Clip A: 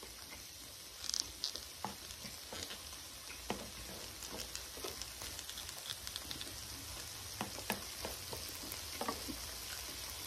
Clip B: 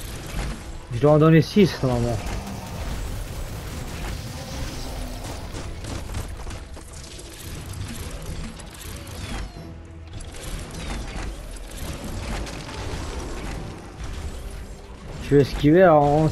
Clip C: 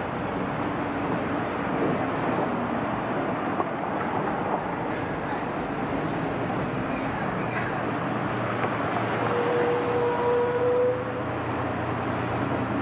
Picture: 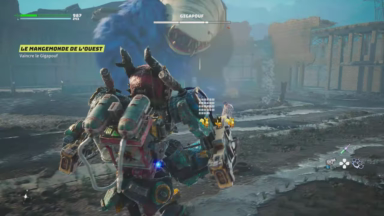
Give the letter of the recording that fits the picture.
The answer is B